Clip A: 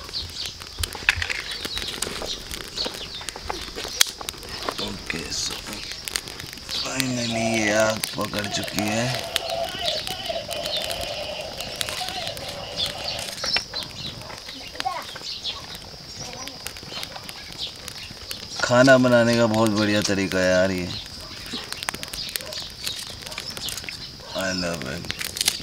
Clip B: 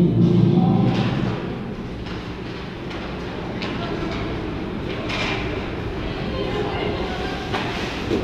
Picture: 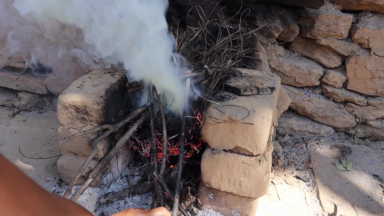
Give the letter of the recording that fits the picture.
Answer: A